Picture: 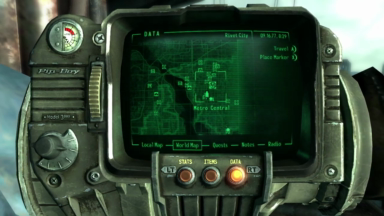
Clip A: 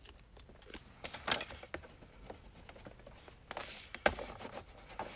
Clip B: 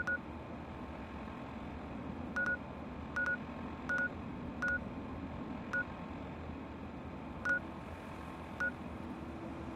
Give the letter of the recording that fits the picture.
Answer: B